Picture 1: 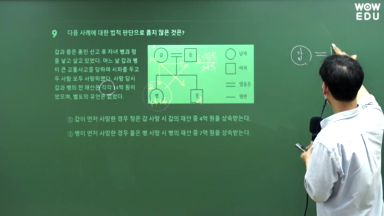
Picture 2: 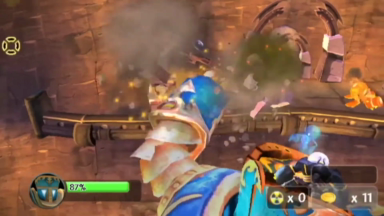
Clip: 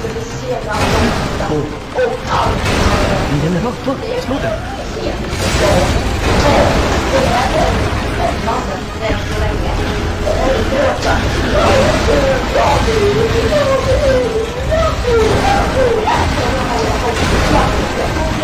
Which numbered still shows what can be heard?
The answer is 2